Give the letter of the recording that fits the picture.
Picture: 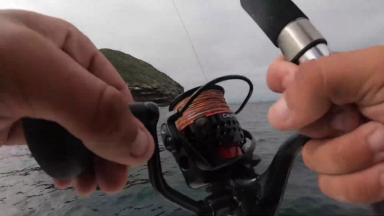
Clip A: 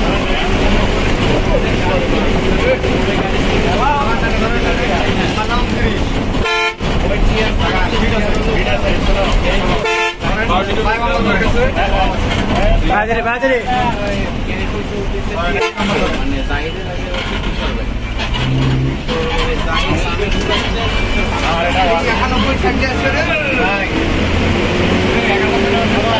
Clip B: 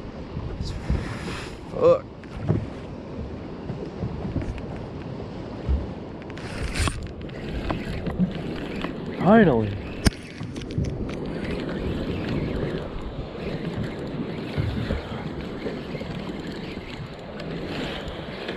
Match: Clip B